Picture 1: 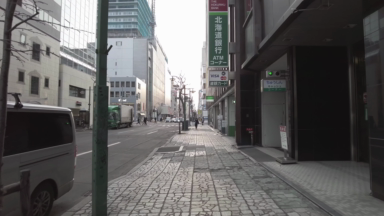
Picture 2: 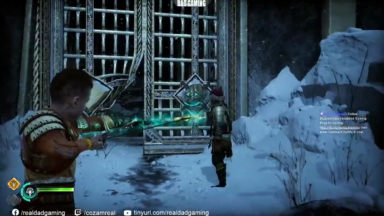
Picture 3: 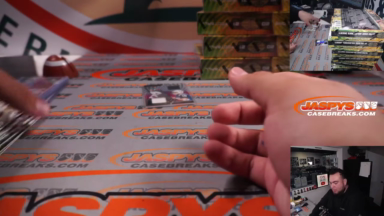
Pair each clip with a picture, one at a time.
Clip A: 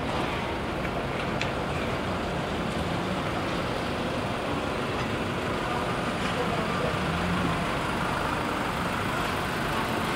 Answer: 1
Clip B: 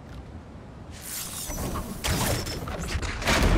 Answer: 2